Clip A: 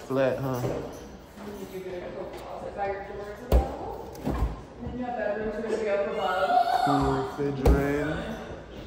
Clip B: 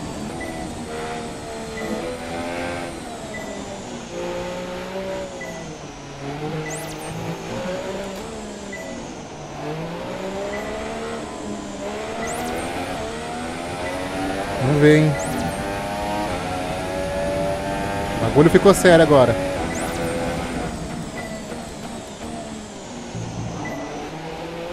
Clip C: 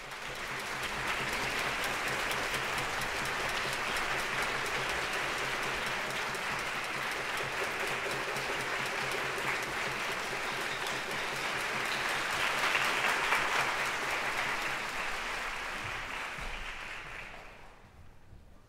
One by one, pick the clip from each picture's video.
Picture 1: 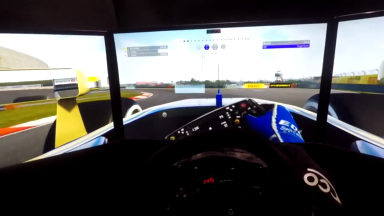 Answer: B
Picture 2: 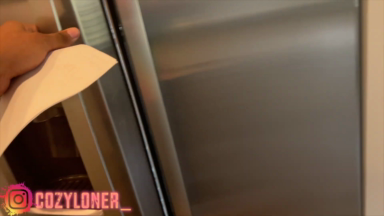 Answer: A